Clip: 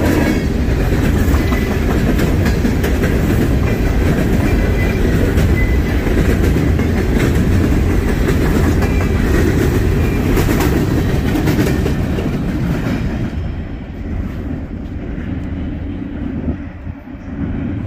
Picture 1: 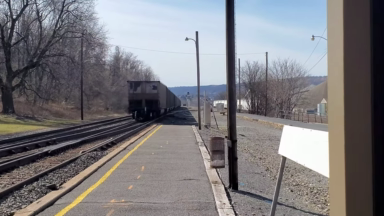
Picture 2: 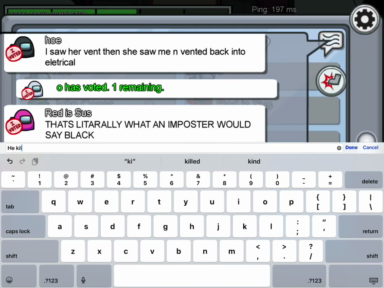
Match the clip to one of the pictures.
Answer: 1